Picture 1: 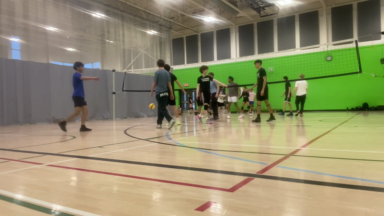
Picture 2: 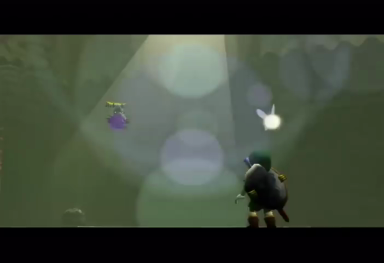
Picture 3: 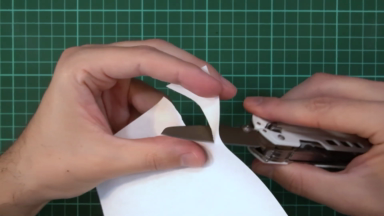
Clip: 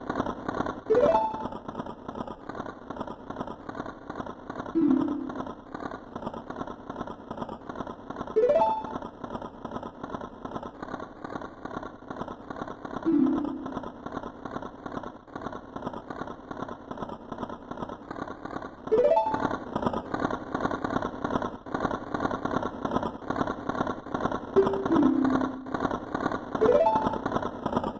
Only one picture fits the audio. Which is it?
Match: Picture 2